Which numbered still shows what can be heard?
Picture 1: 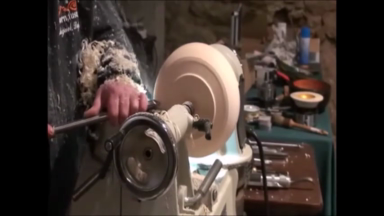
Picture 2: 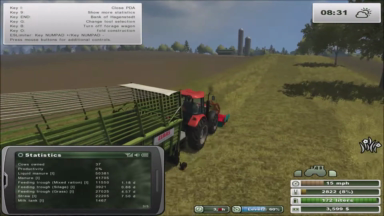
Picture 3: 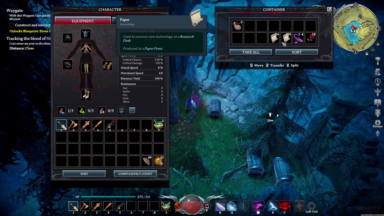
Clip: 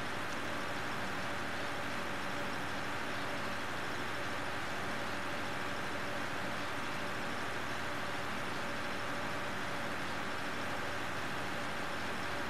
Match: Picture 2